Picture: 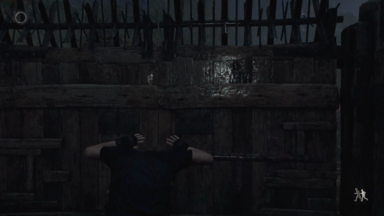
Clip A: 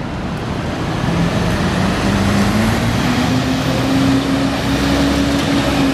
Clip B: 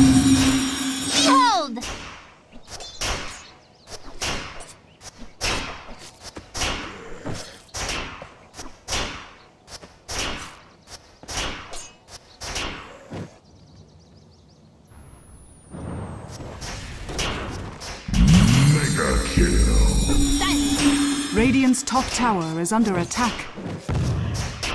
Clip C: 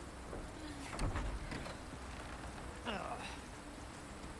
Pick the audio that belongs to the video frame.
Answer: C